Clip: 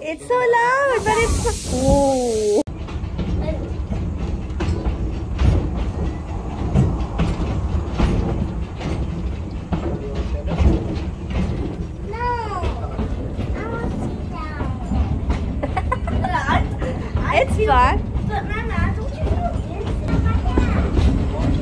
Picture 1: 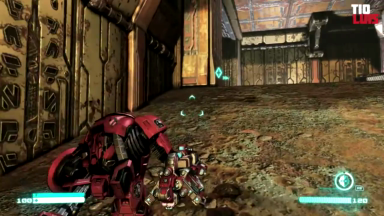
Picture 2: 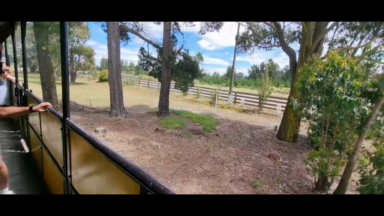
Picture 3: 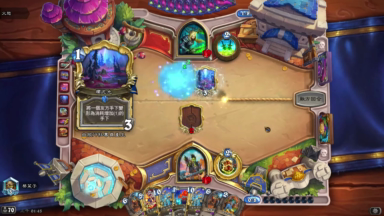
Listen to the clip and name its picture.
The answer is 2